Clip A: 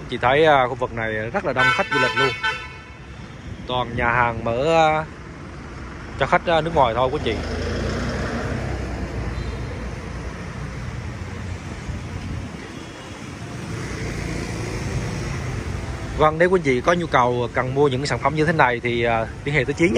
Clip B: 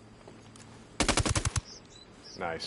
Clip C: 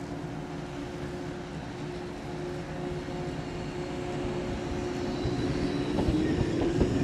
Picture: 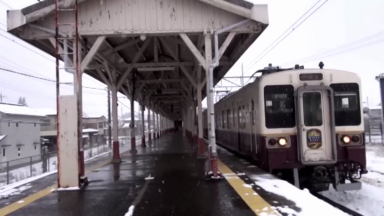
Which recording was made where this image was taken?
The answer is C